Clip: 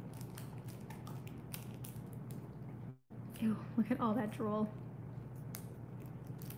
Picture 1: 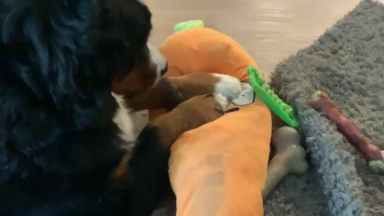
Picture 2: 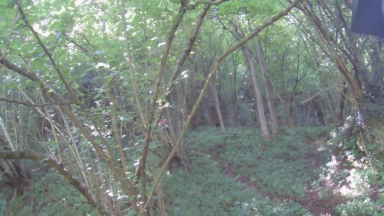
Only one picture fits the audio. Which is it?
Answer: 1